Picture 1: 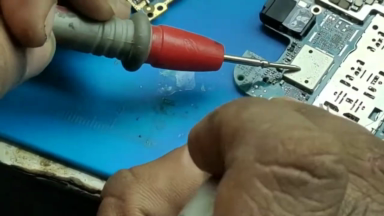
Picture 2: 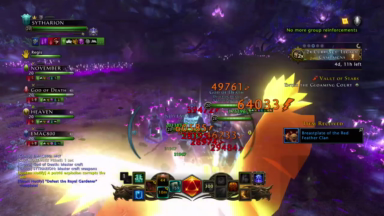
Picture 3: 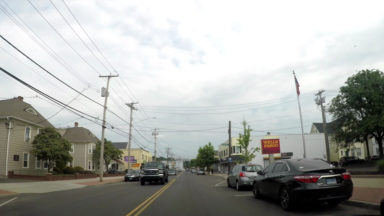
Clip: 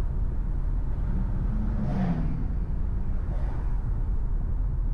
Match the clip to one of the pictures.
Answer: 3